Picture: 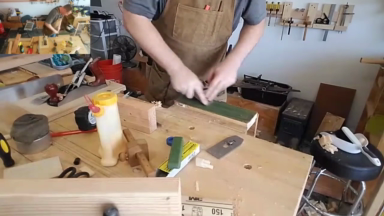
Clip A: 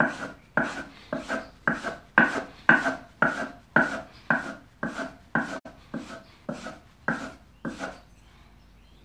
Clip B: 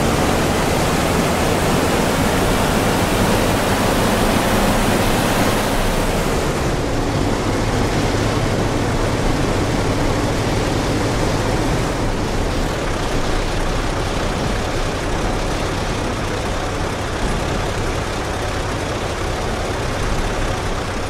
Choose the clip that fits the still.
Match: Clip A